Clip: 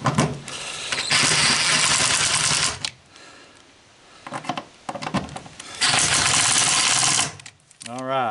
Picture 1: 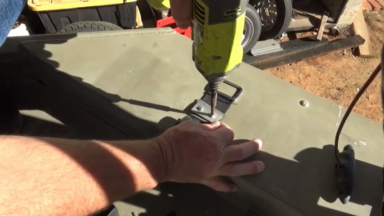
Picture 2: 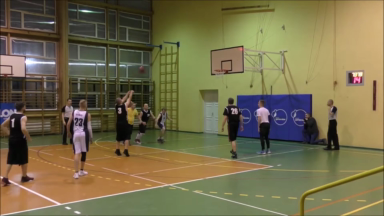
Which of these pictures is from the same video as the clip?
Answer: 1